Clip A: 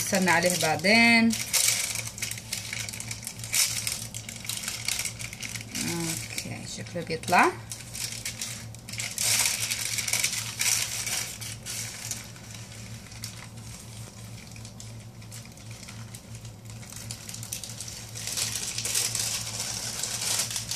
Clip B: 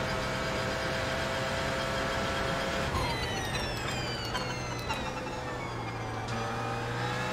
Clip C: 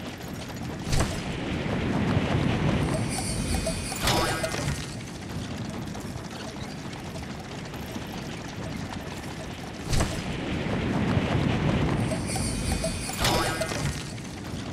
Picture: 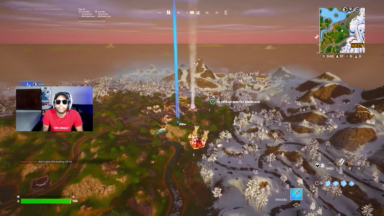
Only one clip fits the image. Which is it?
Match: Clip C